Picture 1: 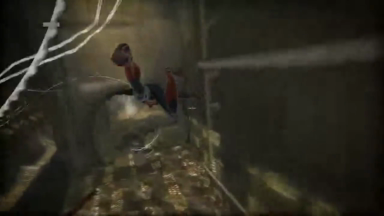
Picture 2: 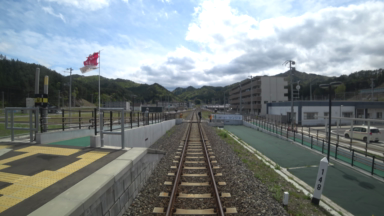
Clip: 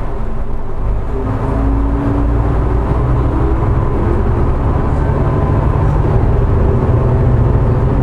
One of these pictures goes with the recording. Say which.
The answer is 2